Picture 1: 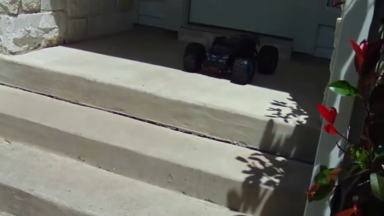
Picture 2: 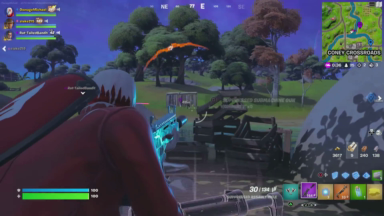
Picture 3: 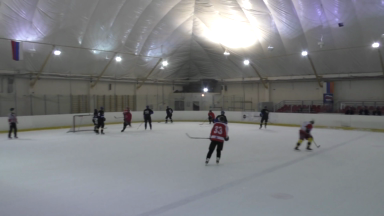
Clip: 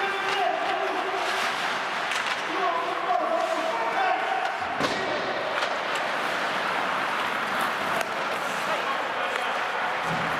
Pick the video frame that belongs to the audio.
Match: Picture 3